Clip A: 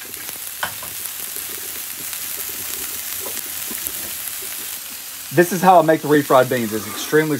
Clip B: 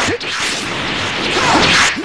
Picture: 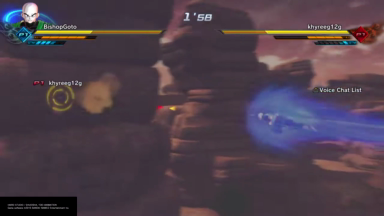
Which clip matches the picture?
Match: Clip B